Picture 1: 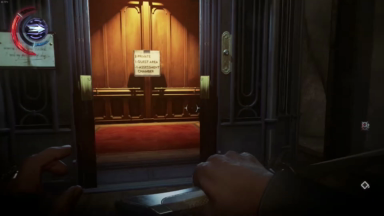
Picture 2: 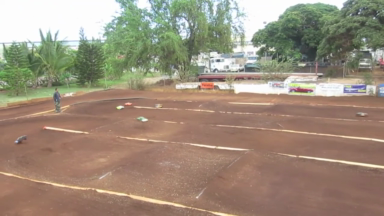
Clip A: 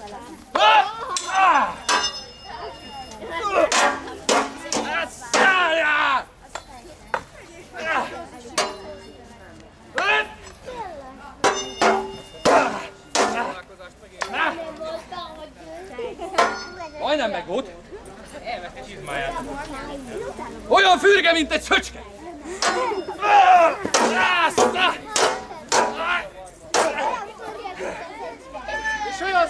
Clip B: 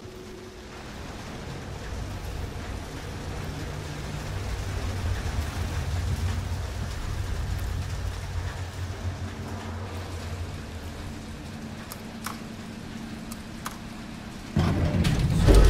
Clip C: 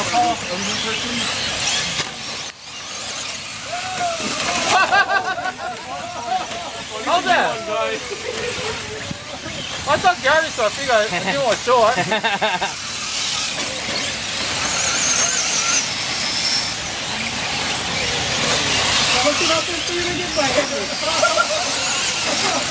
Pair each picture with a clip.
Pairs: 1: B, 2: C